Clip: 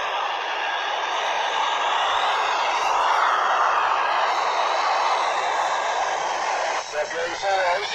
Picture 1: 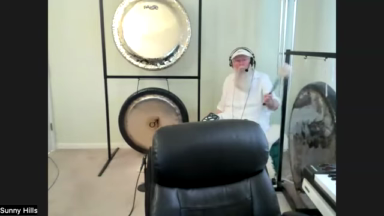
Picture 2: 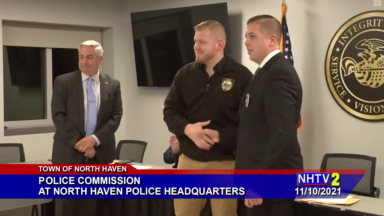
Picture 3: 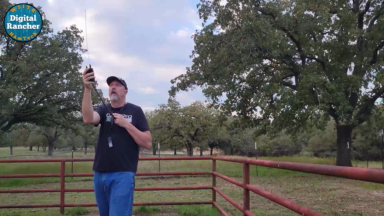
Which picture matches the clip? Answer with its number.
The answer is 3